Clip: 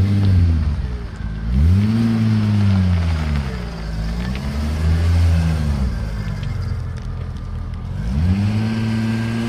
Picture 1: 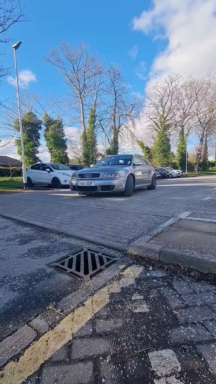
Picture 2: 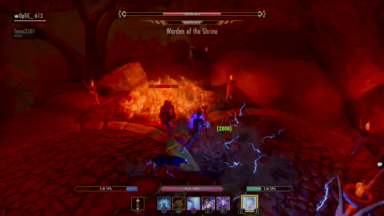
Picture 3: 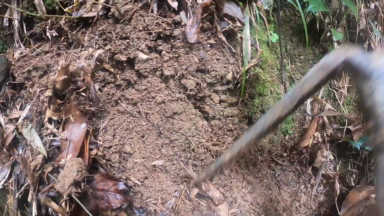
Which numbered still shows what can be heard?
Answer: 1